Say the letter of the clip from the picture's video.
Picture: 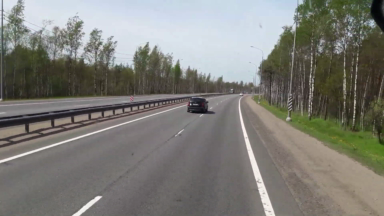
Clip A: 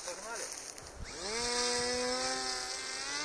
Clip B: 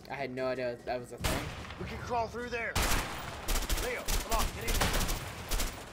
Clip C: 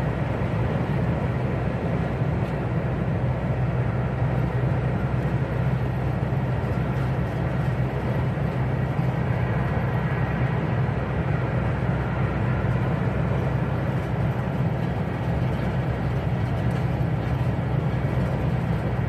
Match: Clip C